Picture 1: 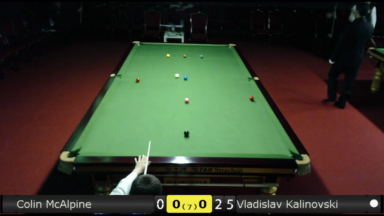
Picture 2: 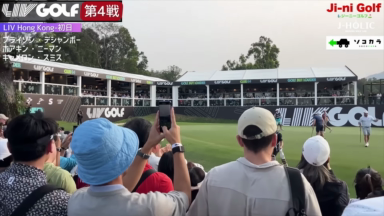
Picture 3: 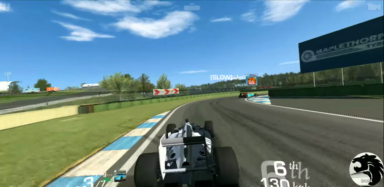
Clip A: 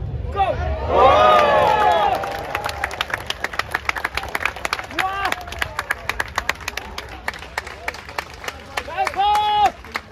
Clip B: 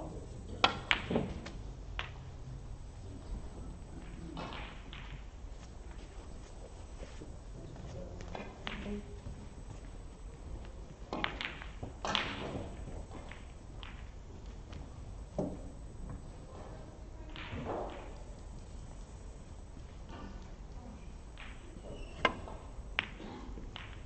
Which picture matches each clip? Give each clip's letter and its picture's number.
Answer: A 2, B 1